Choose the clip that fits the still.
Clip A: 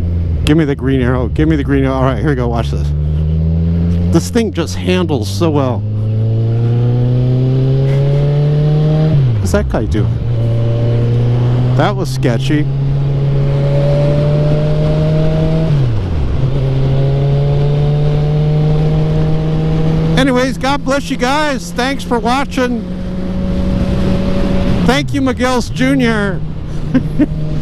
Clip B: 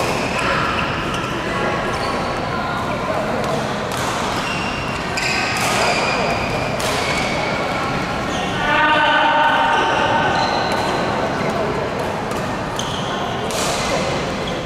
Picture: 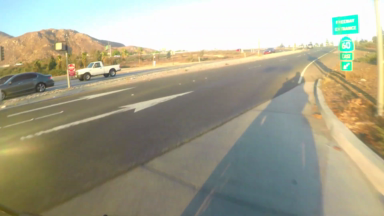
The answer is A